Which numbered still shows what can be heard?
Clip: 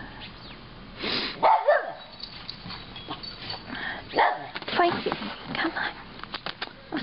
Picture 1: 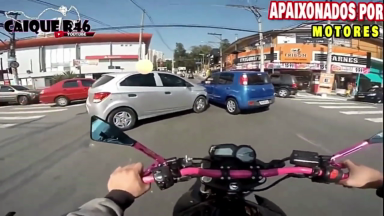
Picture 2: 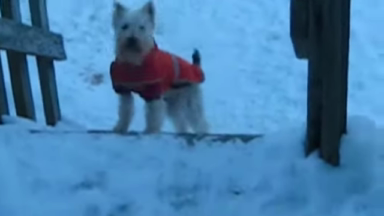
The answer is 2